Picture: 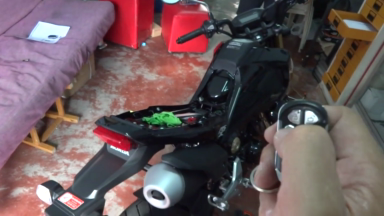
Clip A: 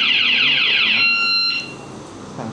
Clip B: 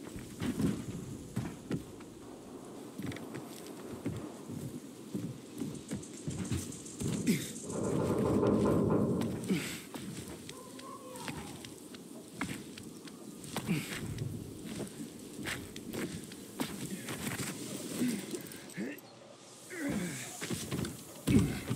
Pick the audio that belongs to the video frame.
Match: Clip A